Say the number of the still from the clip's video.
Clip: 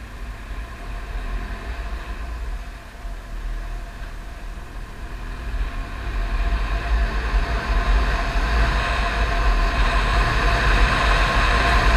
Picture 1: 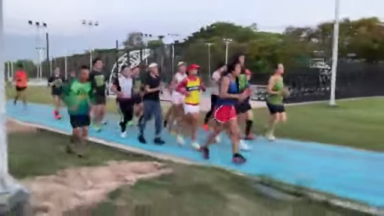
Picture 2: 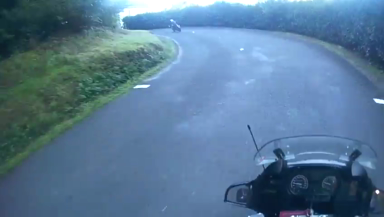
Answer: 2